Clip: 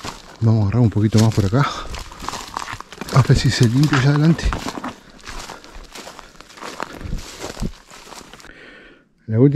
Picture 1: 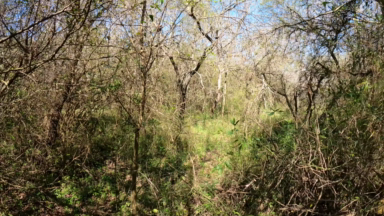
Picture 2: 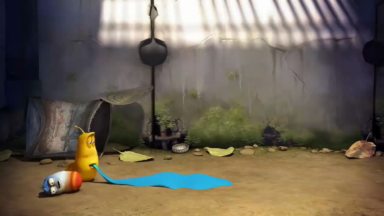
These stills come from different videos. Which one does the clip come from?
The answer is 1